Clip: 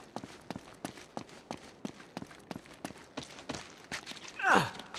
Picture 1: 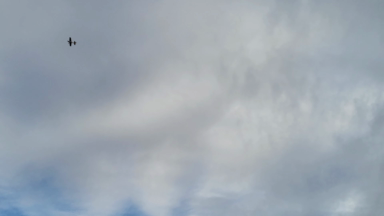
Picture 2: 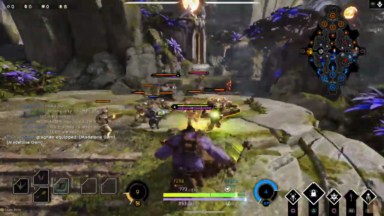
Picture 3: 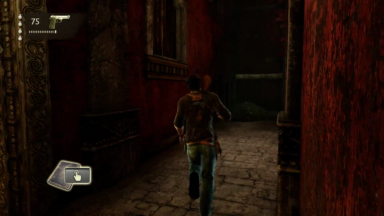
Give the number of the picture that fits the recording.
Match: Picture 3